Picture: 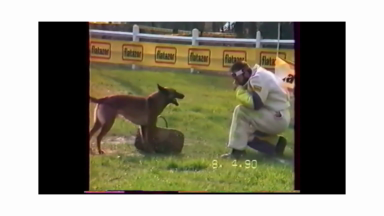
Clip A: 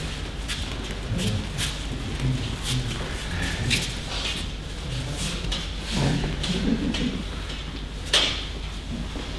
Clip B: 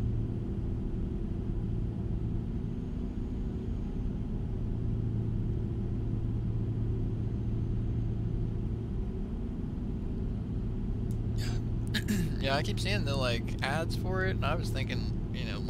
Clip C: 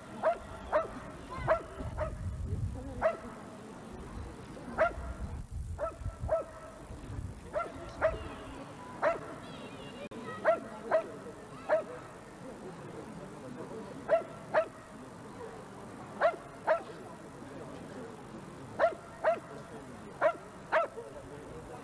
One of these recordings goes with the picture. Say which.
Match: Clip C